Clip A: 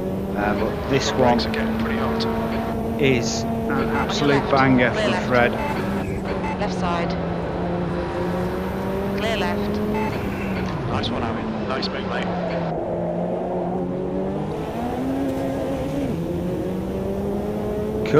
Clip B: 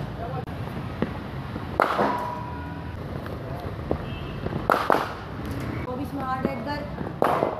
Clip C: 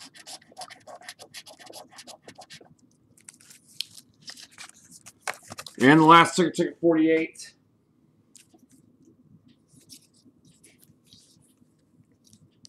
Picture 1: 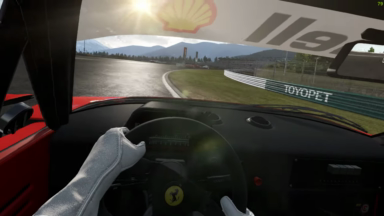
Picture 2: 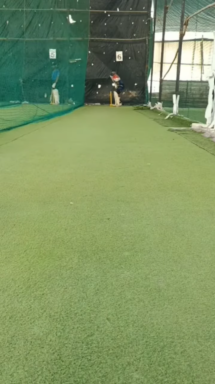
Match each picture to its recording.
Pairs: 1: A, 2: B